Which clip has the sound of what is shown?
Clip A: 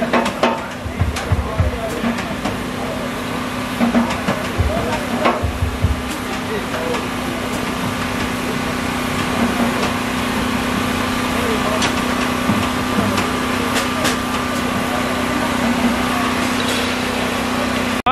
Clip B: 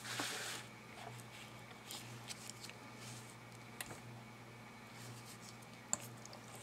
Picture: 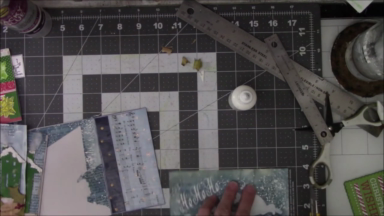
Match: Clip B